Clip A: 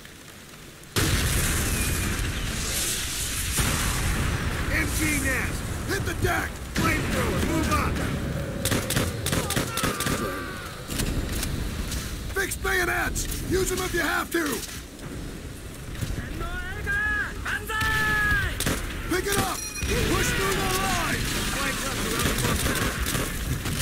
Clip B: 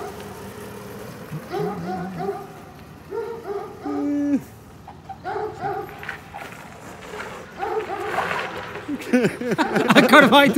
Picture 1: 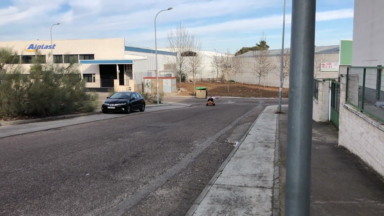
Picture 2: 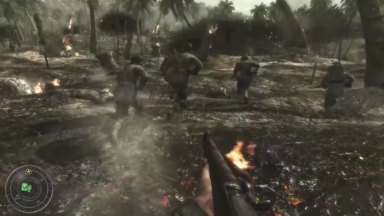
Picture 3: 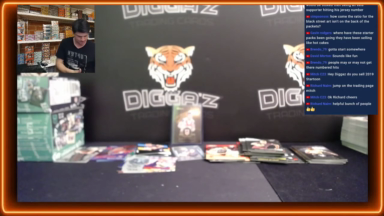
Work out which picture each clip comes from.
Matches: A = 2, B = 1